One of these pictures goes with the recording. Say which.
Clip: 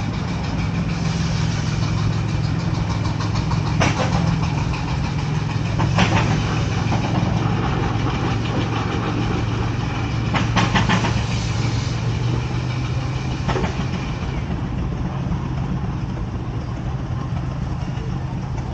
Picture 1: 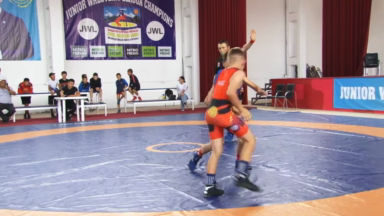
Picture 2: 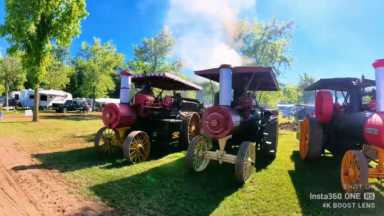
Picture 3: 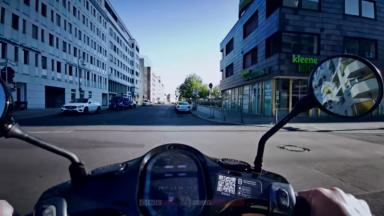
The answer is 2